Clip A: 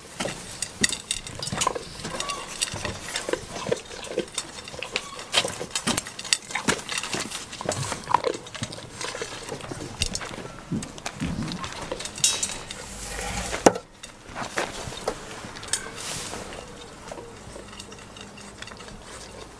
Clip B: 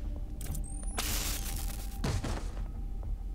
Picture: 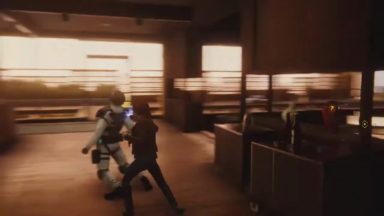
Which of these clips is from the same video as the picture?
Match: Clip B